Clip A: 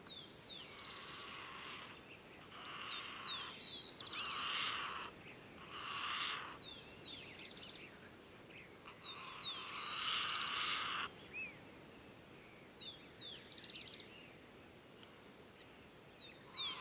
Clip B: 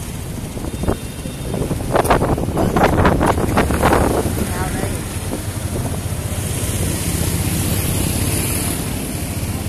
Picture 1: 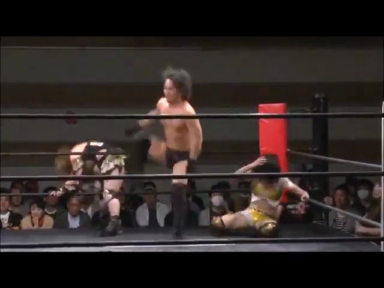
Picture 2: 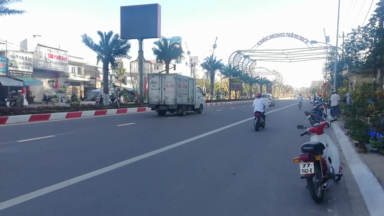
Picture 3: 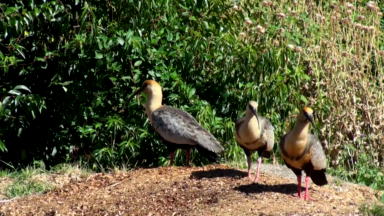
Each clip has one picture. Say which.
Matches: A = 3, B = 2